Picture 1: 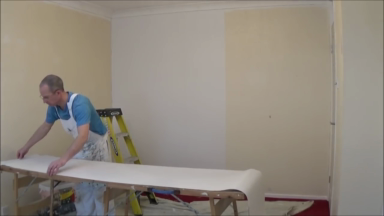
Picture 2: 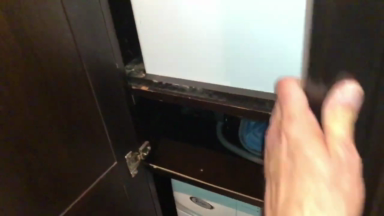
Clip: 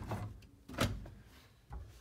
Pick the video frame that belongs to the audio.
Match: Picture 2